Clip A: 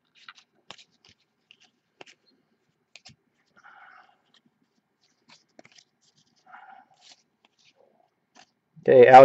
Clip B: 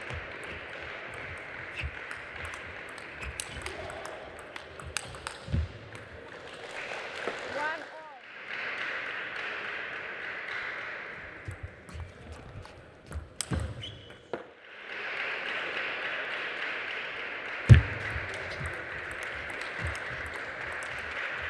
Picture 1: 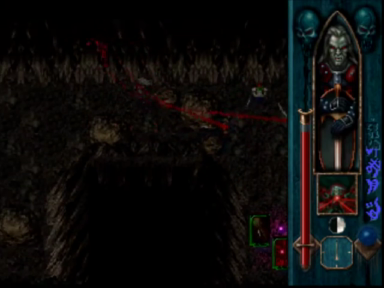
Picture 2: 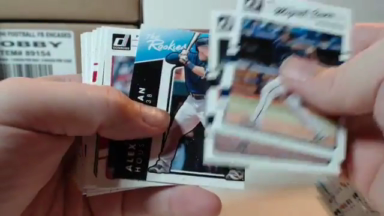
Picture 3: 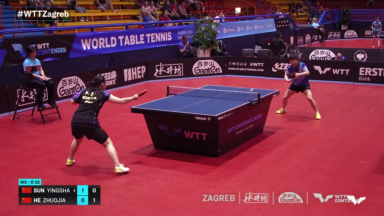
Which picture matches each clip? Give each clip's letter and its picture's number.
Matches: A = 2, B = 3